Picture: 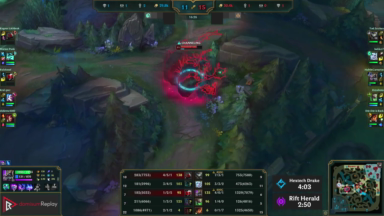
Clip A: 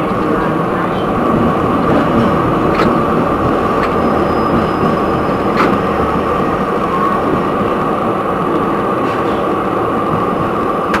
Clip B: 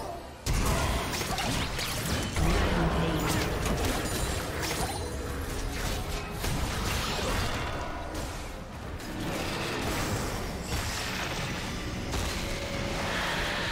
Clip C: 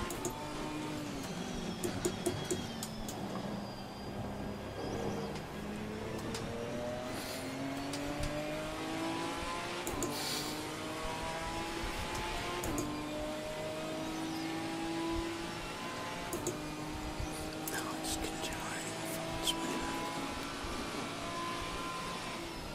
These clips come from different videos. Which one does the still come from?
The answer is B